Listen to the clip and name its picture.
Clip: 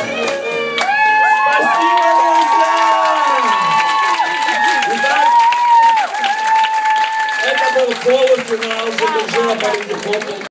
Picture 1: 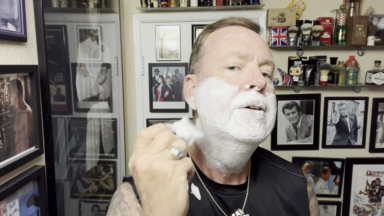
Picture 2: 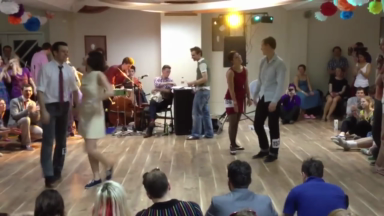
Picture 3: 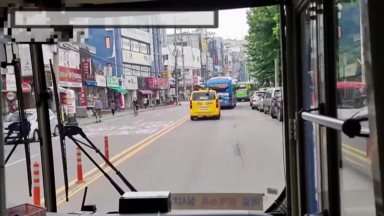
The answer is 2